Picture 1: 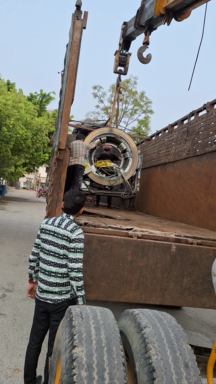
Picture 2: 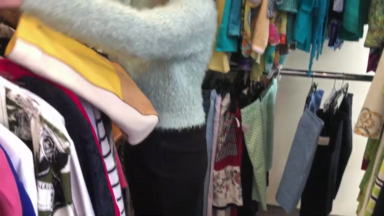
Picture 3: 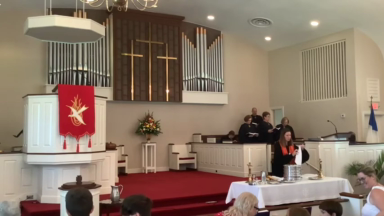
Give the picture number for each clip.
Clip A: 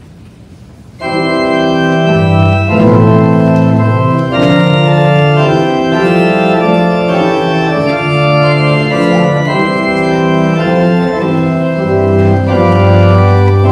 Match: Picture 3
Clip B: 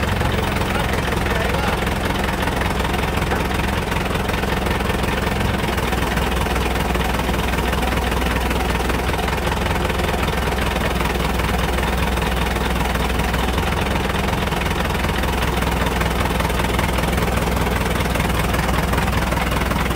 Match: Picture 1